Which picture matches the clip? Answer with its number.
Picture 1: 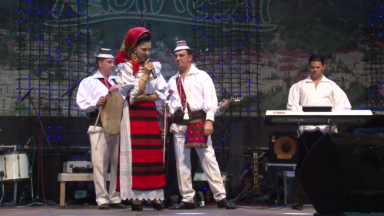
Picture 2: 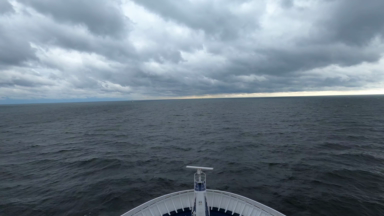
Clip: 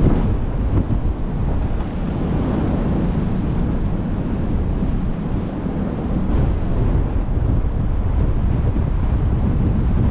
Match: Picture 2